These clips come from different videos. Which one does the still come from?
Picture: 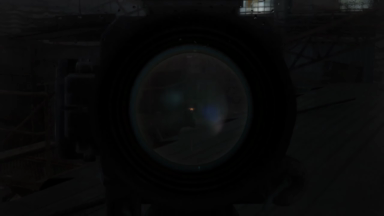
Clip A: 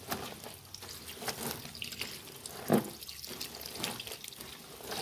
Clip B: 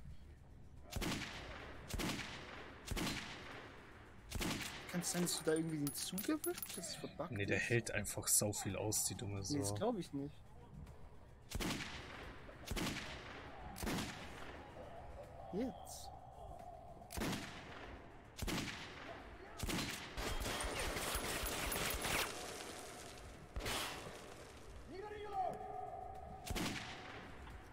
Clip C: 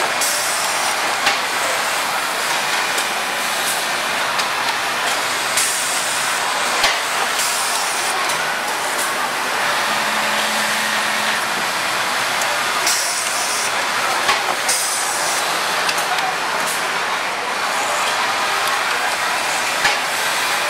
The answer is B